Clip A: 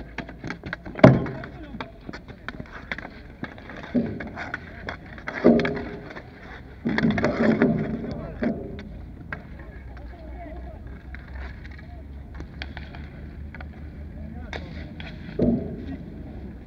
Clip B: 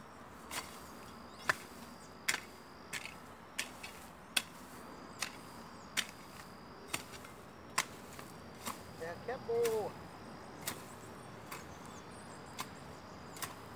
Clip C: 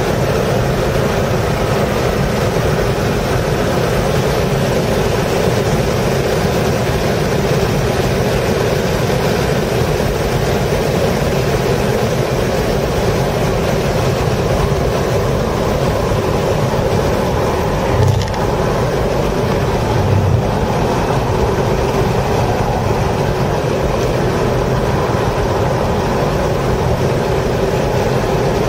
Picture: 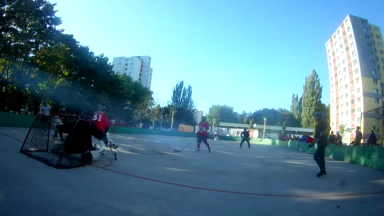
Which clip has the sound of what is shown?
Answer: A